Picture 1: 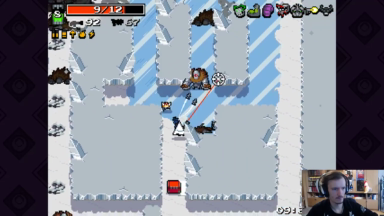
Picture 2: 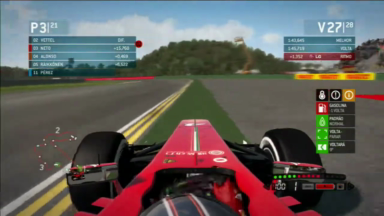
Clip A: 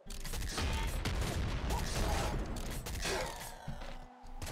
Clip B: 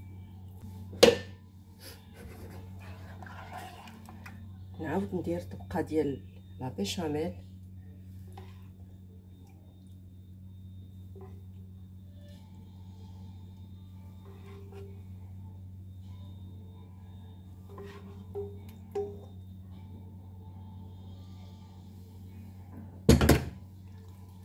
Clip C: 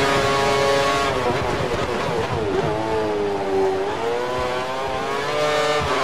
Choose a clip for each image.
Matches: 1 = A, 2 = C